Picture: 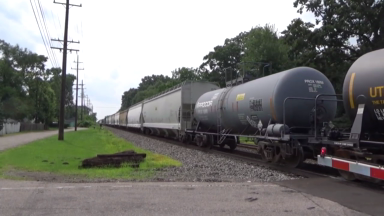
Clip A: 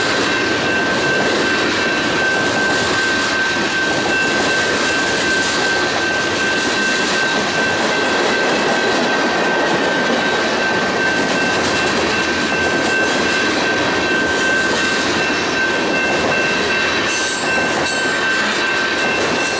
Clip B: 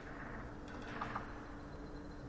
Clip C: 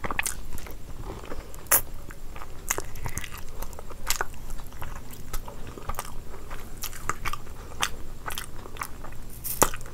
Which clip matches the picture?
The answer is A